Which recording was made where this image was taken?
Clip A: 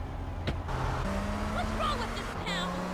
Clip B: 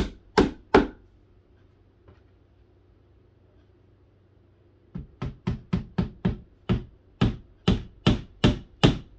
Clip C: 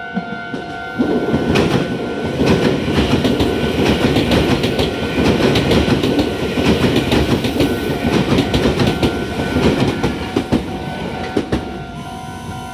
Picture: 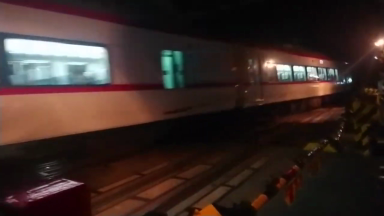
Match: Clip C